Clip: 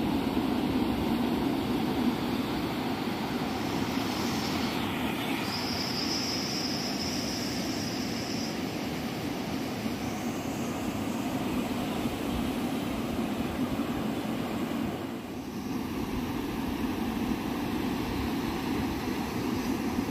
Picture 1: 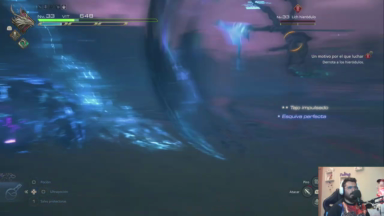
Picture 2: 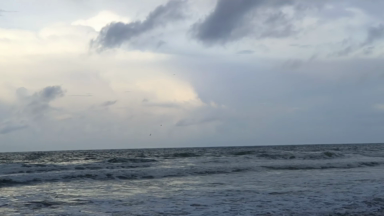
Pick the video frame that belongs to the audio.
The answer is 2